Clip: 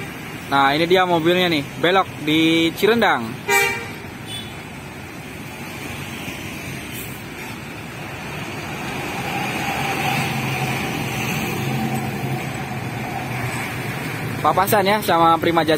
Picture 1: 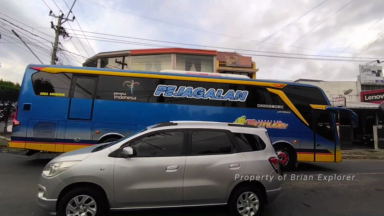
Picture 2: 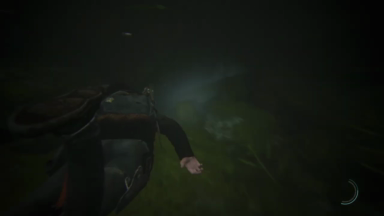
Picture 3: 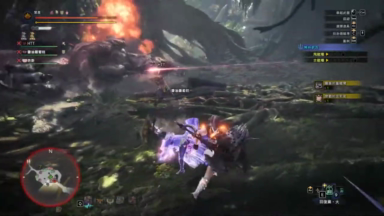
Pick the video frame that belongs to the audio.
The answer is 1